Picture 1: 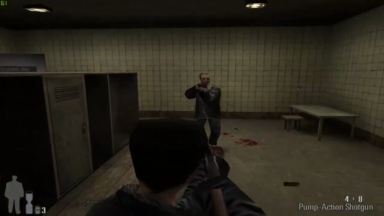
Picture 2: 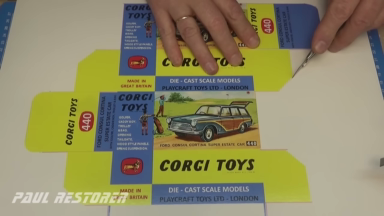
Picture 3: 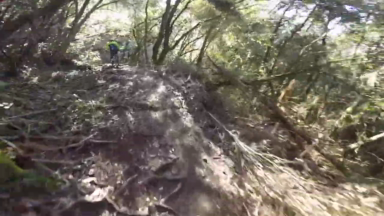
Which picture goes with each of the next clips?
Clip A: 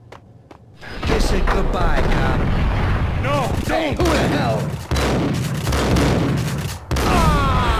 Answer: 1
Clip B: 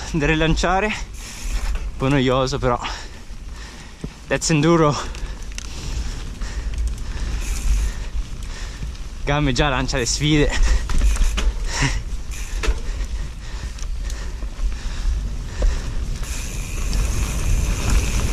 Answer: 3